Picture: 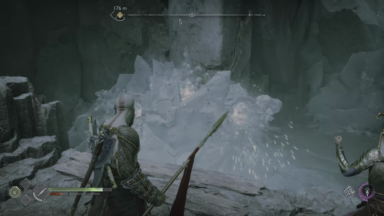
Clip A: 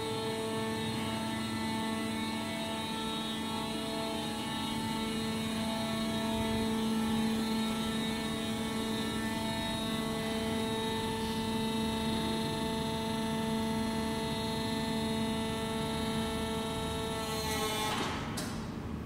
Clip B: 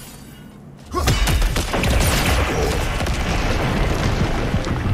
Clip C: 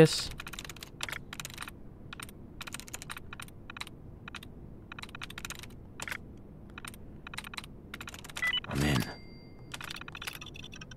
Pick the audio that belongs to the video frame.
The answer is B